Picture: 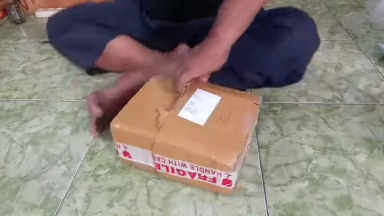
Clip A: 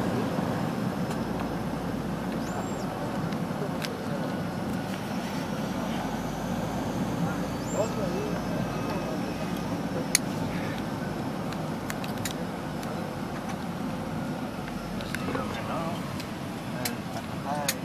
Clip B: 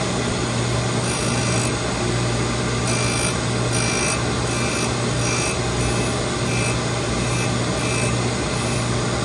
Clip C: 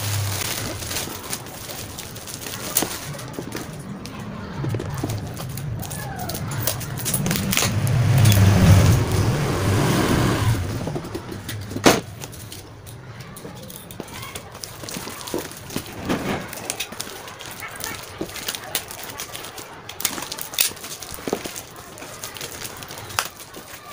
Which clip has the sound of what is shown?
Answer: C